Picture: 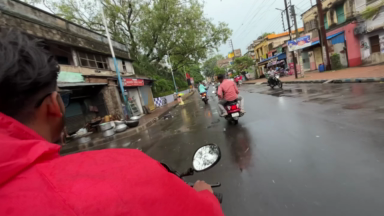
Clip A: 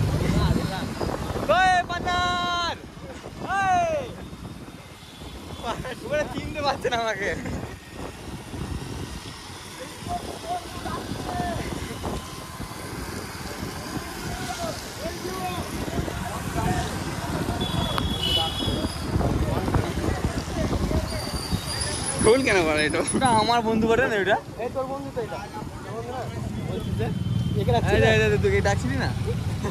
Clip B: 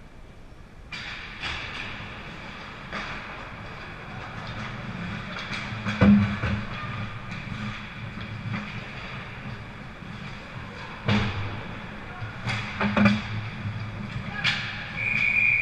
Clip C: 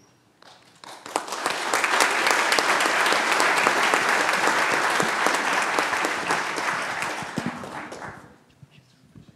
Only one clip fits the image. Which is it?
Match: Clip A